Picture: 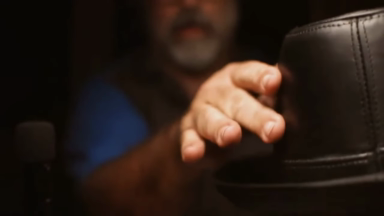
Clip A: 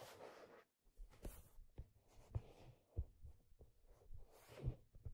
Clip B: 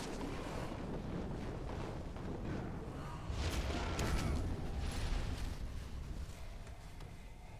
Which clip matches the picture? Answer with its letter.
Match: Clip A